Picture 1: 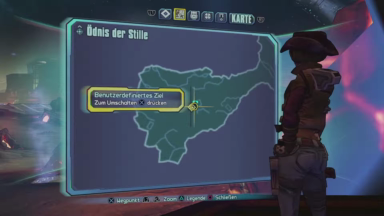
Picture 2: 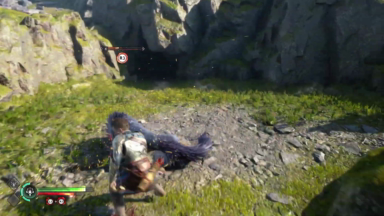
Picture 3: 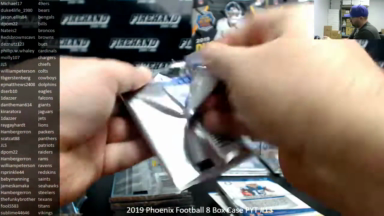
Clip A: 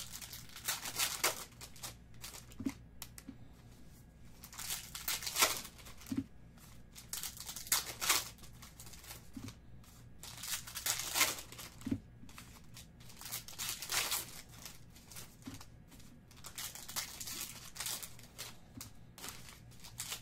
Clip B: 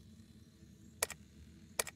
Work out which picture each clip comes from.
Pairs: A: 3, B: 1